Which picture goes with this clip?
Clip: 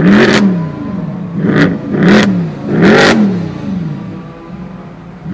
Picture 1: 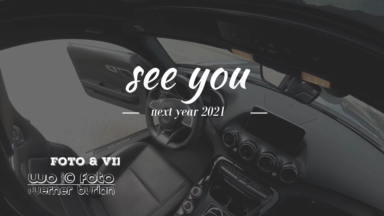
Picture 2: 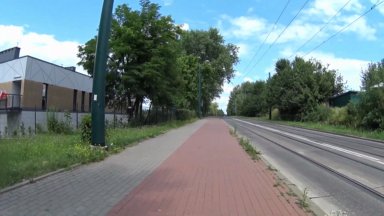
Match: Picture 1